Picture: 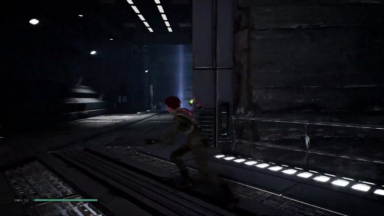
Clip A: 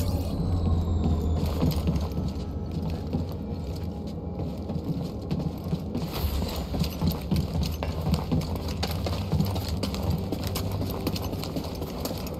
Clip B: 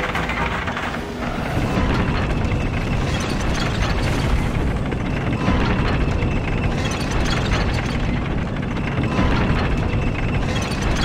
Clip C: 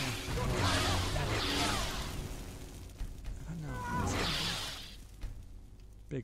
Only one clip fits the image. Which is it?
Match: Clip A